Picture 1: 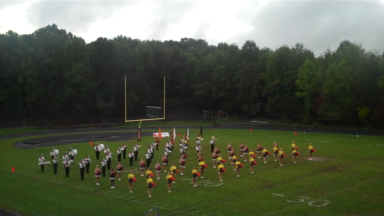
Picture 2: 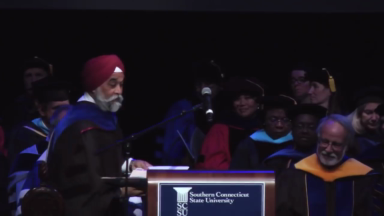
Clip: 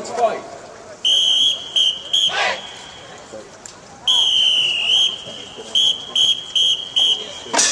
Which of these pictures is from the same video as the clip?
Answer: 1